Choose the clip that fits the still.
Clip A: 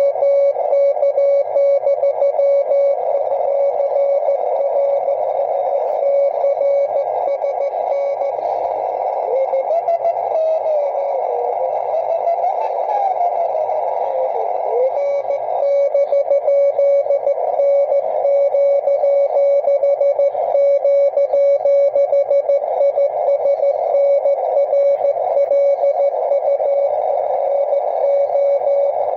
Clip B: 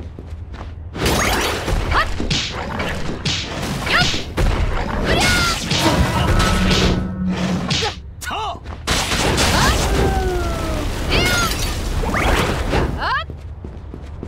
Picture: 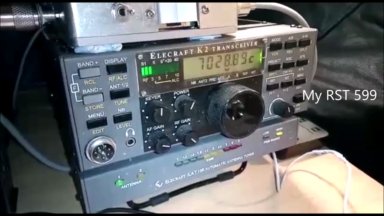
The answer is A